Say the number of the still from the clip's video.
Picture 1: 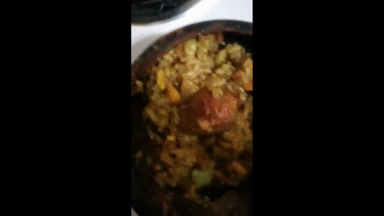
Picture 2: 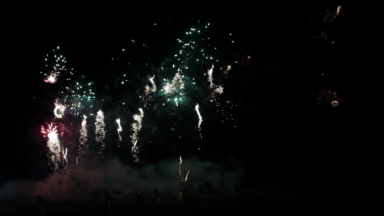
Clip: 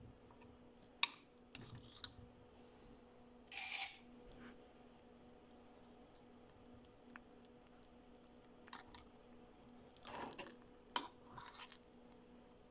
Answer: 1